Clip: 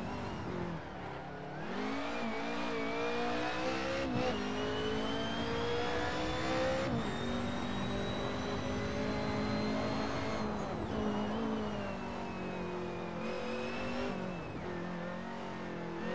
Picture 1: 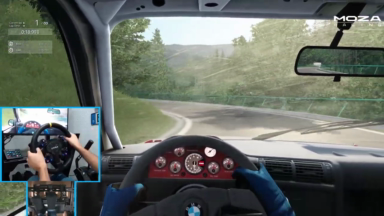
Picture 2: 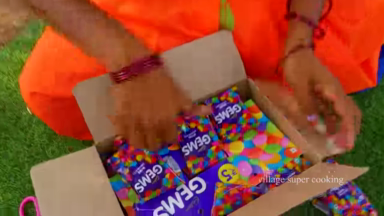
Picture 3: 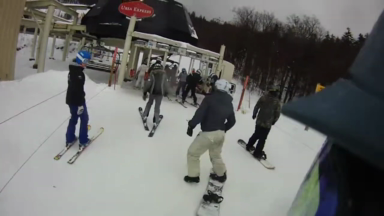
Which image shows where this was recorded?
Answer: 1